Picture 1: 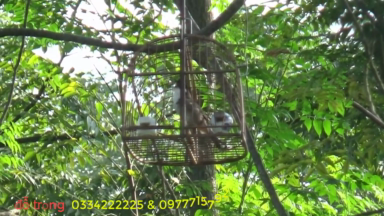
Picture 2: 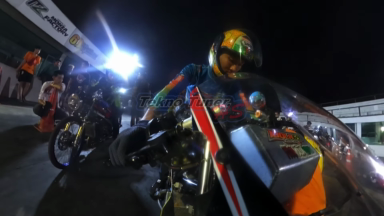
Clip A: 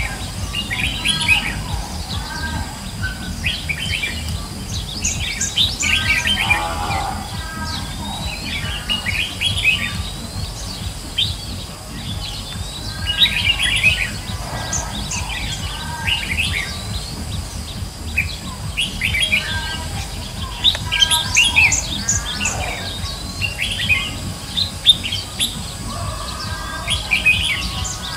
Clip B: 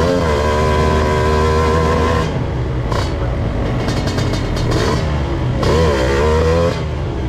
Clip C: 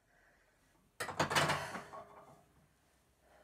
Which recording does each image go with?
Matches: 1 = A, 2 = B